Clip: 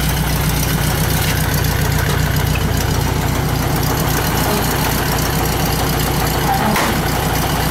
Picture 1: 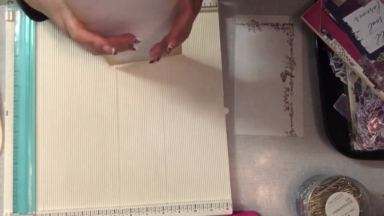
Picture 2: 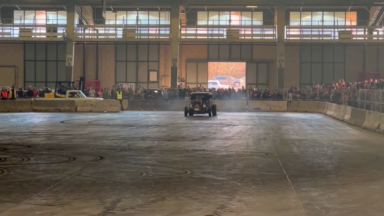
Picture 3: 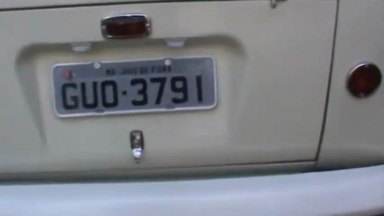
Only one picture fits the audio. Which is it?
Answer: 3